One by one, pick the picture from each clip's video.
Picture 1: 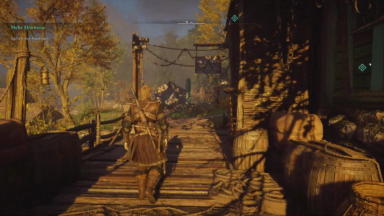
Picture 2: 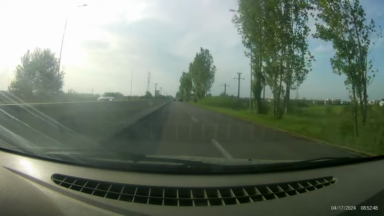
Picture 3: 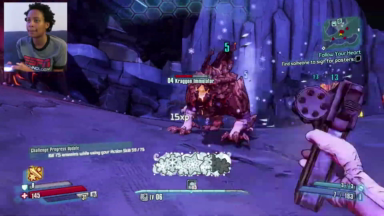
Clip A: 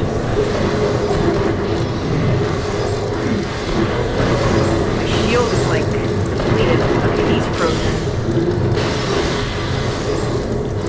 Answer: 3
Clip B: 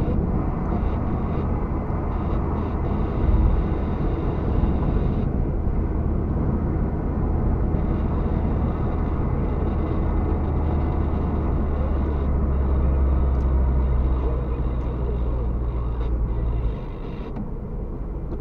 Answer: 2